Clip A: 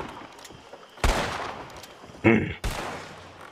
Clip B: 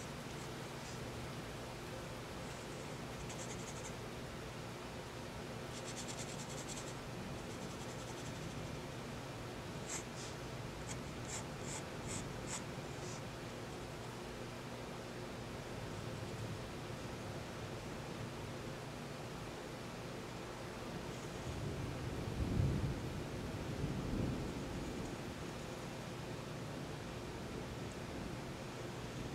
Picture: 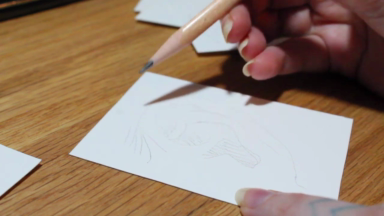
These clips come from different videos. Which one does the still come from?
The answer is B